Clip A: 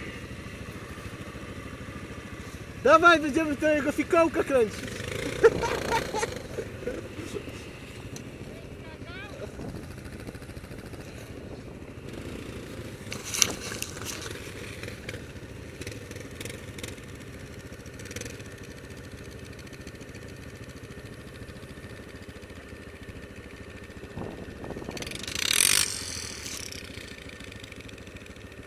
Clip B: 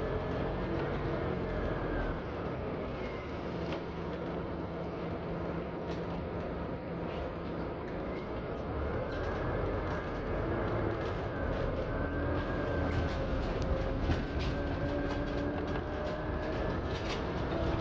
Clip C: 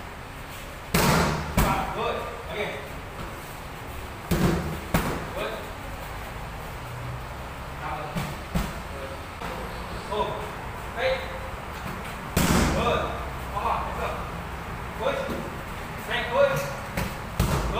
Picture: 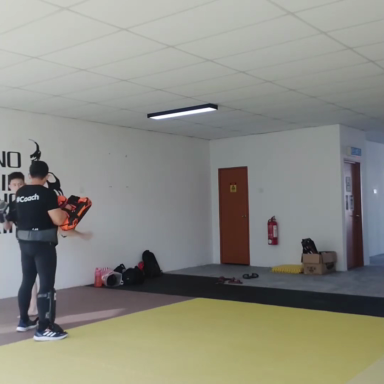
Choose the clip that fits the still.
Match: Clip C